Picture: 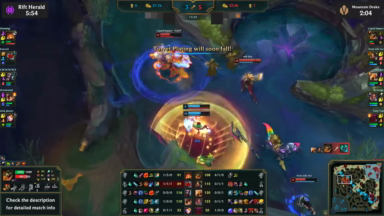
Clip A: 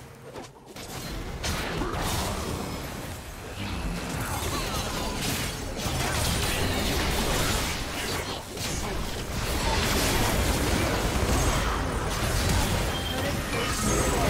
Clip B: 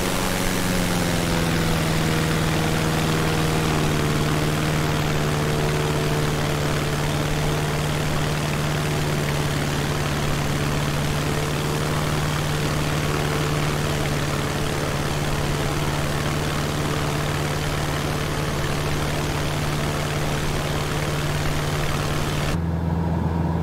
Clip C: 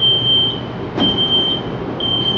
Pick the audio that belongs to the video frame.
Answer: A